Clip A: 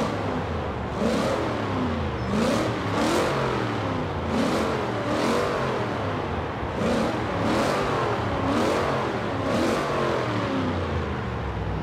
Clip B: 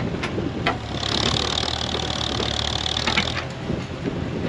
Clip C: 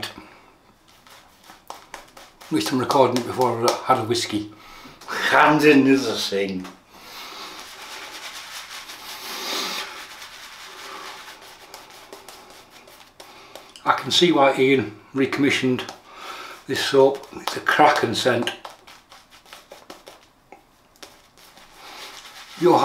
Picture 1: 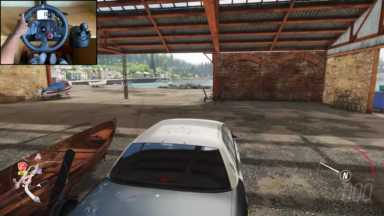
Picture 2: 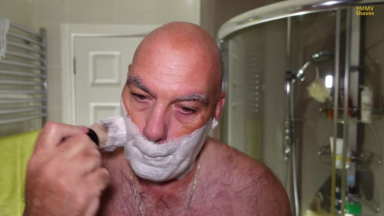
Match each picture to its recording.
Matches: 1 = A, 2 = C